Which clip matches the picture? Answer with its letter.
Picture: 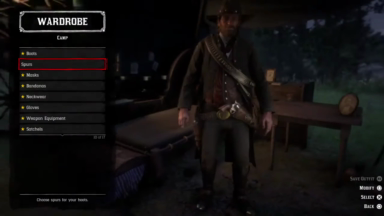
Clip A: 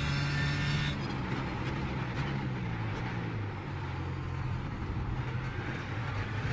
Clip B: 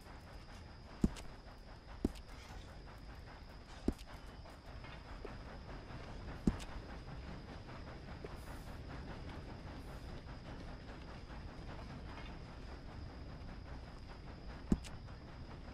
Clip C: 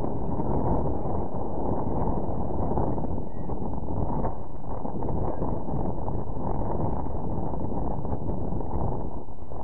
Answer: B